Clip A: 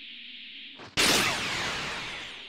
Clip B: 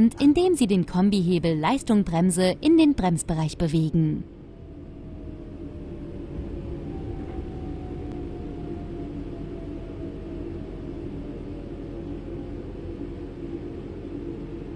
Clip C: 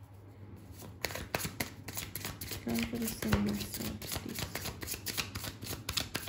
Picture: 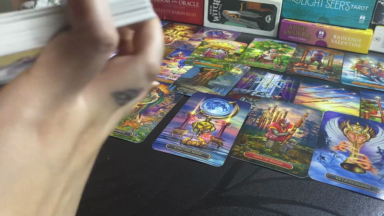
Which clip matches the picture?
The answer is C